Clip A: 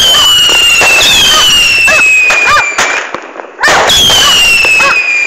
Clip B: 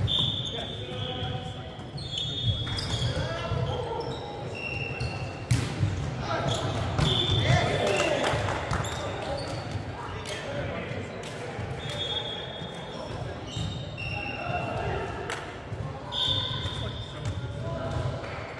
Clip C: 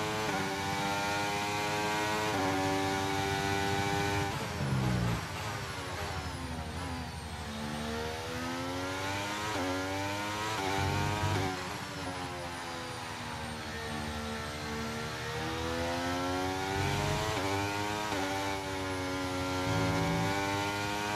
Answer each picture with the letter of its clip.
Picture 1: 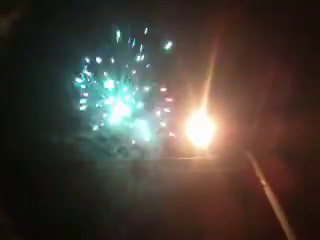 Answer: A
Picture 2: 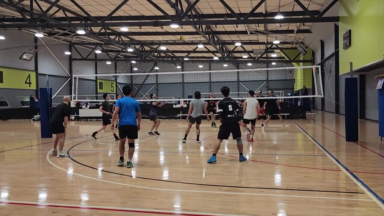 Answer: B